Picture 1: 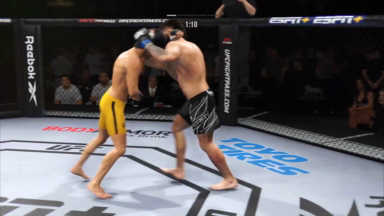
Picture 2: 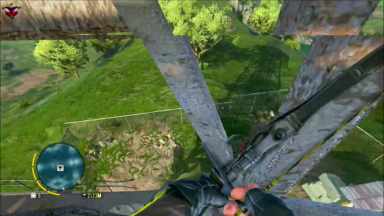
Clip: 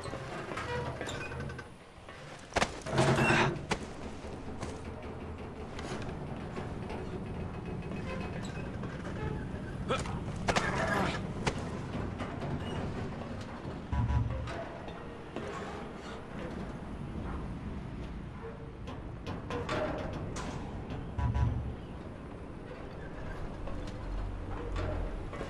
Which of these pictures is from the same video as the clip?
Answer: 2